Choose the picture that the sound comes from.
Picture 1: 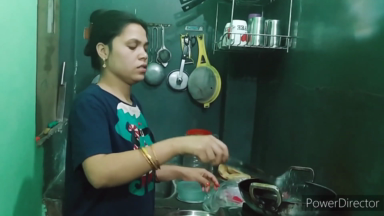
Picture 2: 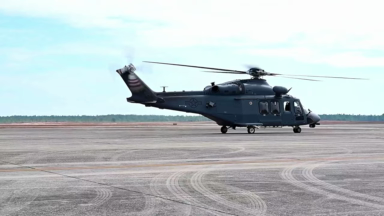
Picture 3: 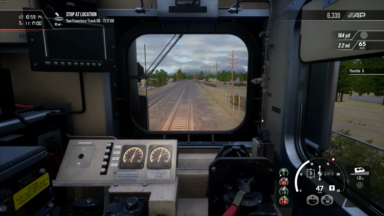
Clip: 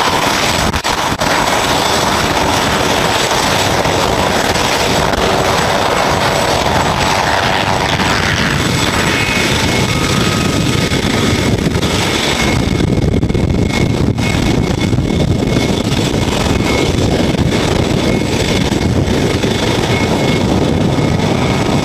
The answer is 2